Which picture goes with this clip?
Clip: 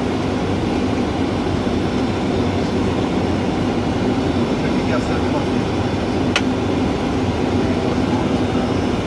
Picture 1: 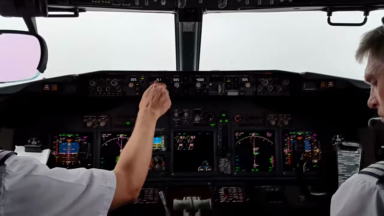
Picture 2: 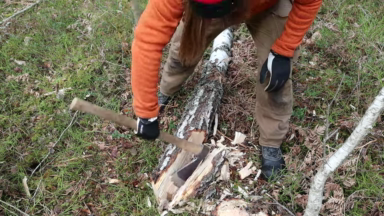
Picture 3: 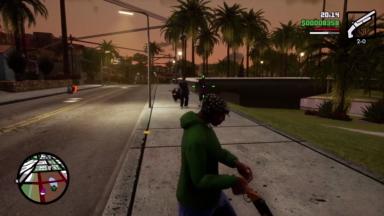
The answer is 1